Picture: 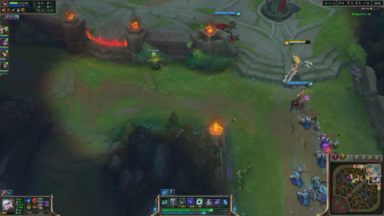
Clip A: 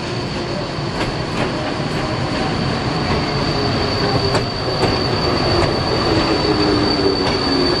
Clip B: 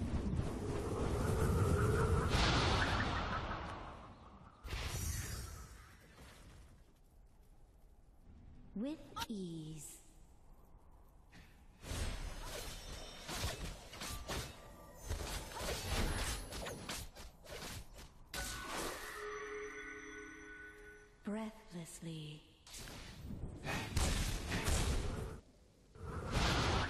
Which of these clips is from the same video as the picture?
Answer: B